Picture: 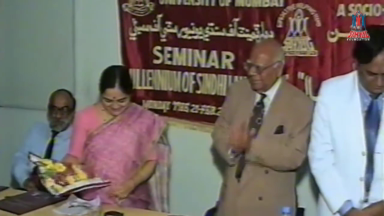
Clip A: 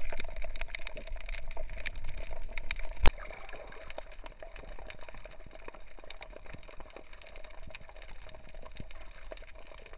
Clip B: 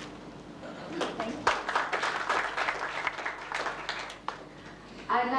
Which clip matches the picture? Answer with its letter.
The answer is B